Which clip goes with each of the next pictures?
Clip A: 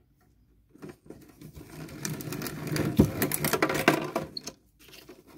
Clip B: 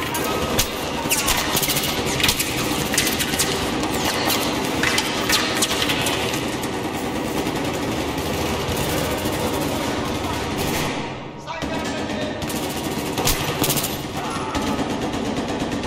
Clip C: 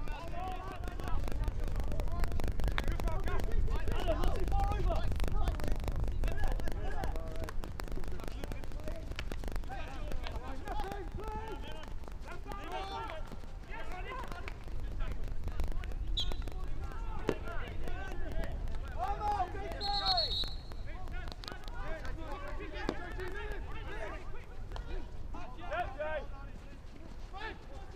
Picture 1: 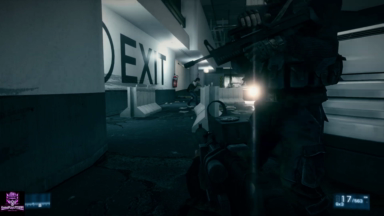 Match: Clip B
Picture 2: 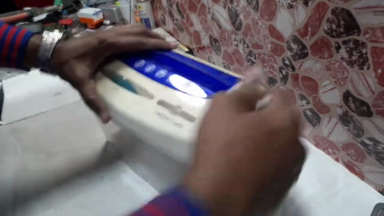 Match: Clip A